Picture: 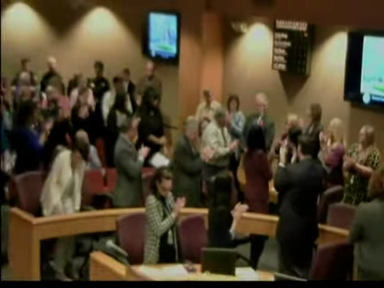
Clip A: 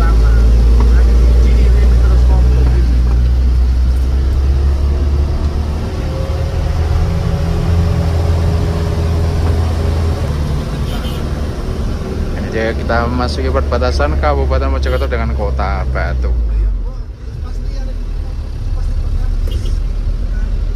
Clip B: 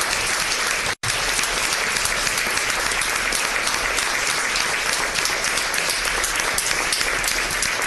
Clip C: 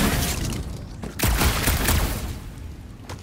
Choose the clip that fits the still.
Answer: B